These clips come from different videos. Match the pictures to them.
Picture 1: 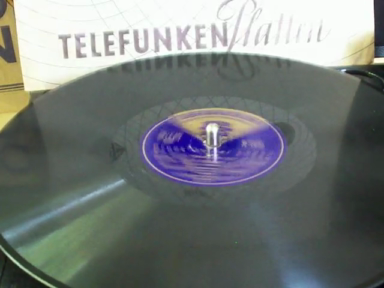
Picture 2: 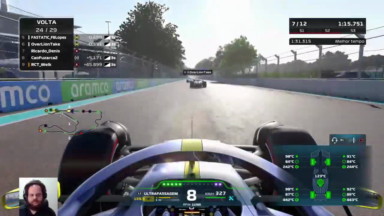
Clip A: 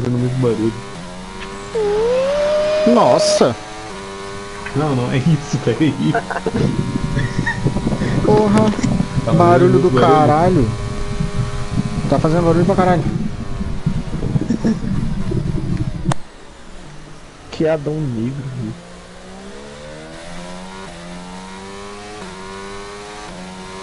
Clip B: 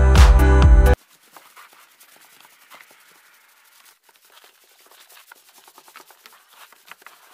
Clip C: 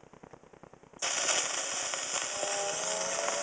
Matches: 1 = C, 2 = A